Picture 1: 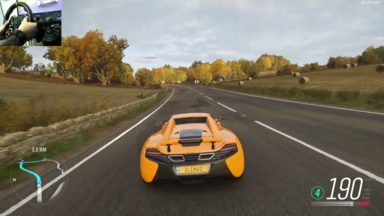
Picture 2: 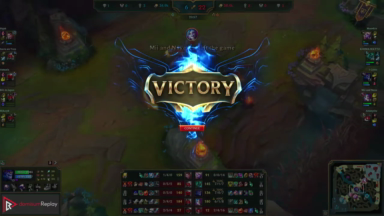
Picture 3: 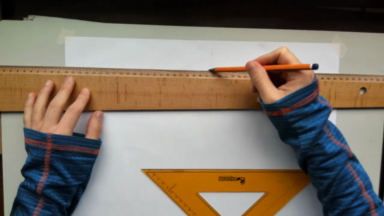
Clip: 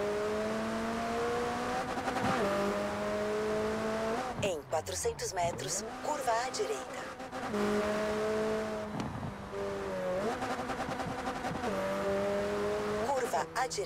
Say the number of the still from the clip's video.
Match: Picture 1